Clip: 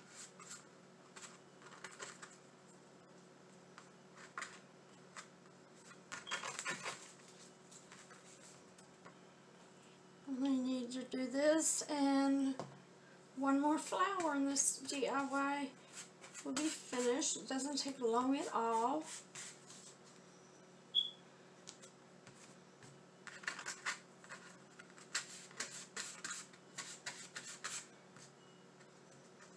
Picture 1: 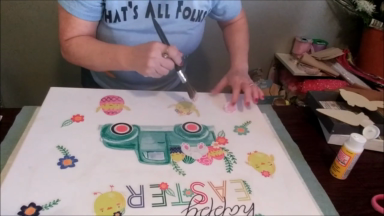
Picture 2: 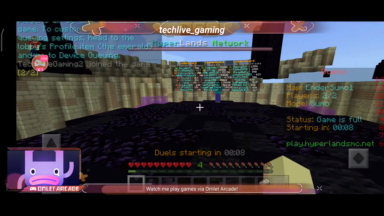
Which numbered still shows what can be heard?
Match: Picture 1